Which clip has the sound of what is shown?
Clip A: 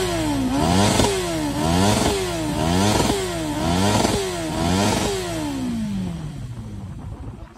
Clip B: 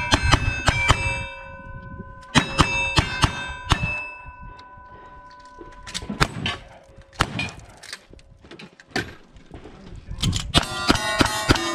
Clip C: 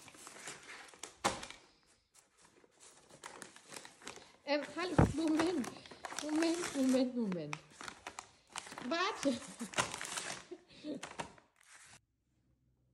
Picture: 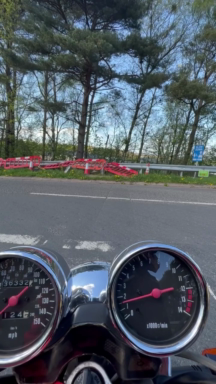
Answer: A